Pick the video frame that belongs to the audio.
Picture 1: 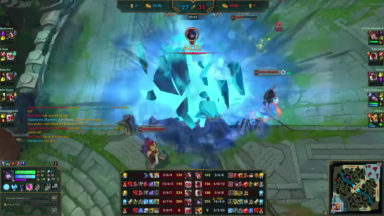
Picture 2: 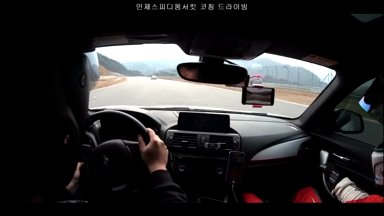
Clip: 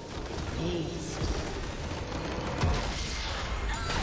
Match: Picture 1